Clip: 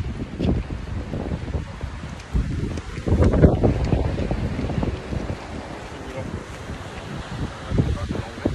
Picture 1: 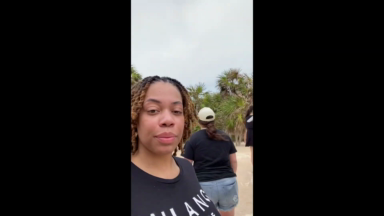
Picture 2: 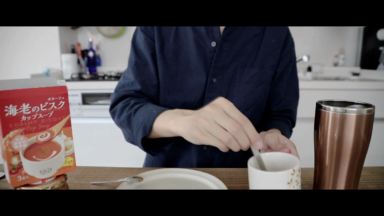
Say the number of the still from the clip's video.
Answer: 1